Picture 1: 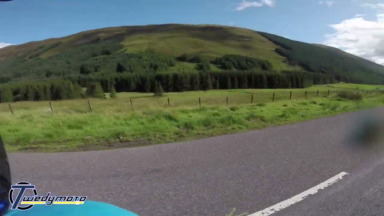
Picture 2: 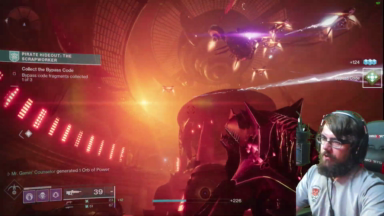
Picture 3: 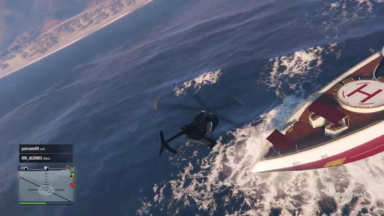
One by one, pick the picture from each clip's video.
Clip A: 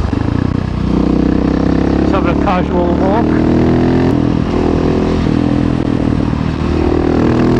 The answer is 1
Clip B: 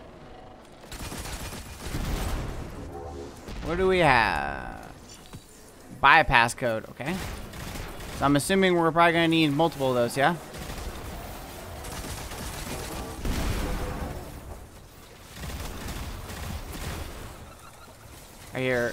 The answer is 2